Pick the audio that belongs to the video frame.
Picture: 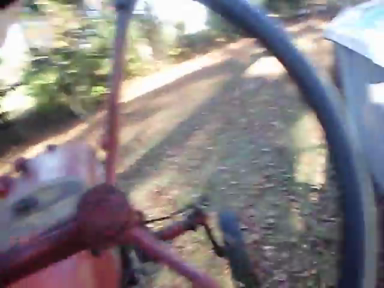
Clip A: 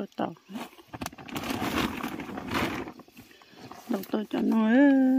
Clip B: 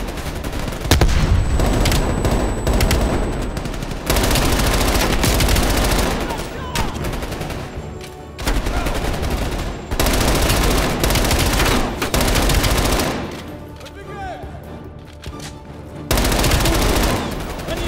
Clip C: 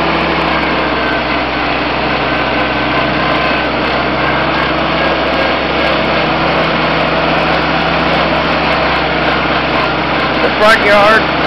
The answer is C